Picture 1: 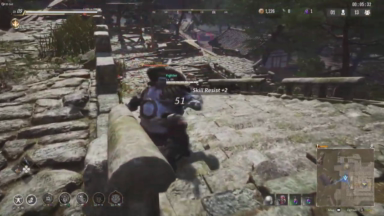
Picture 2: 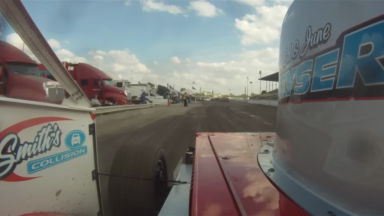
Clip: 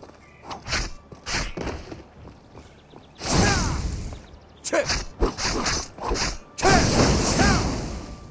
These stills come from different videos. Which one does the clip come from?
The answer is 1